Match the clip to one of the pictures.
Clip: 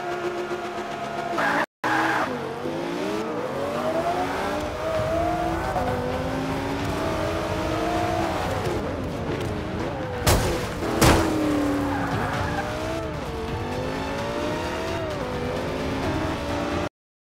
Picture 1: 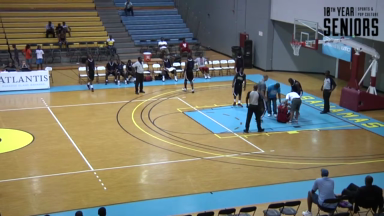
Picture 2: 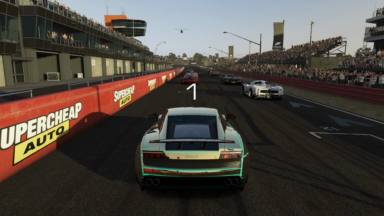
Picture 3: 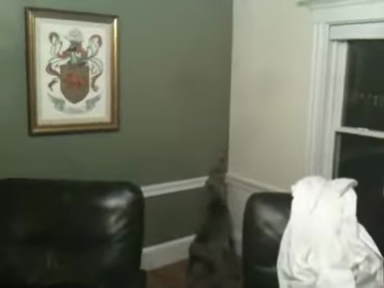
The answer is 2